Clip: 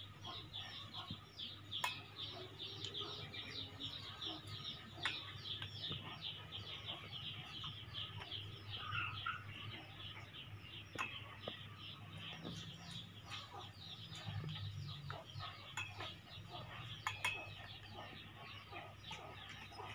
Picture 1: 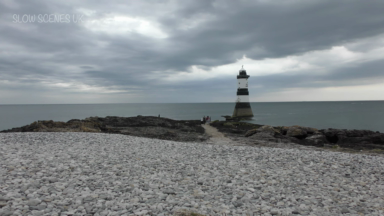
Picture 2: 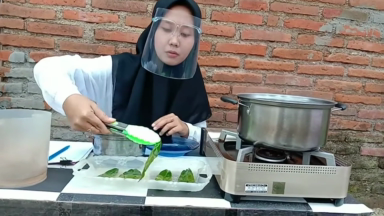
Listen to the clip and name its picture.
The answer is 2